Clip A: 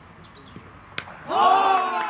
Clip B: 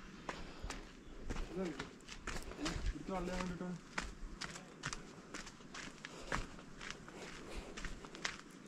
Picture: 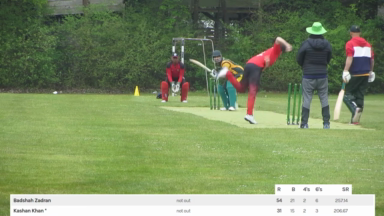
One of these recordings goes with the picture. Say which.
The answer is A